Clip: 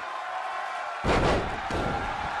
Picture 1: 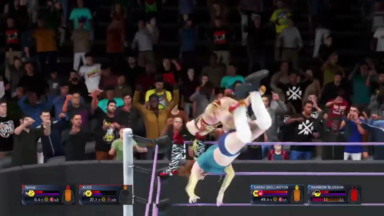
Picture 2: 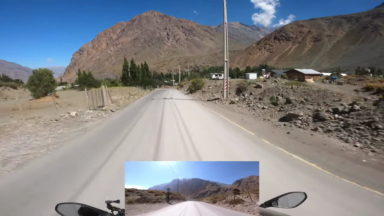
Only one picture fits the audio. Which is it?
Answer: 1